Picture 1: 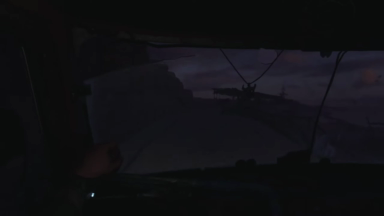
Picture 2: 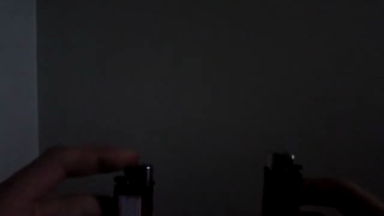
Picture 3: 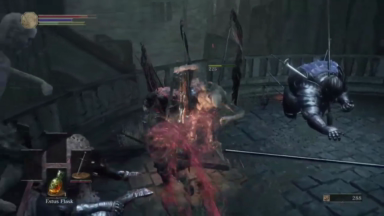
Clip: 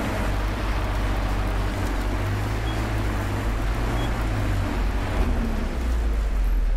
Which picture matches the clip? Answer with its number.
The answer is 1